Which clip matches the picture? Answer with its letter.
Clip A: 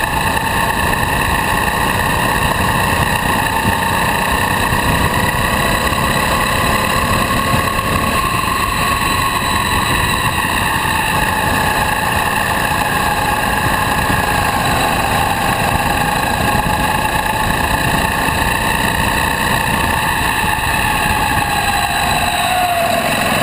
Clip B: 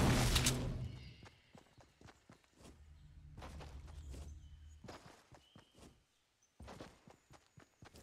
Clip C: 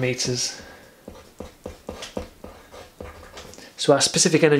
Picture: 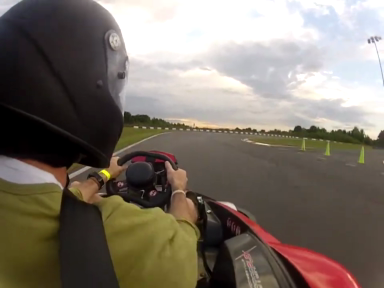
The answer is A